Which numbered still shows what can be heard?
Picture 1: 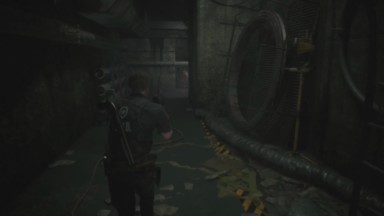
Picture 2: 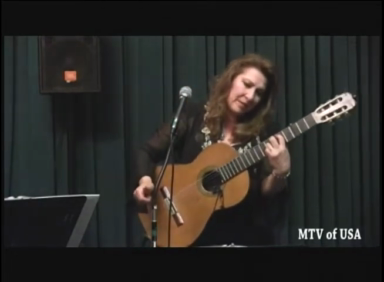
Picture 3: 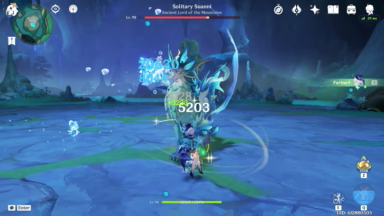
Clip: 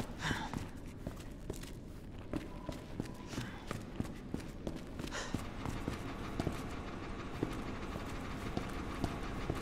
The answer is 1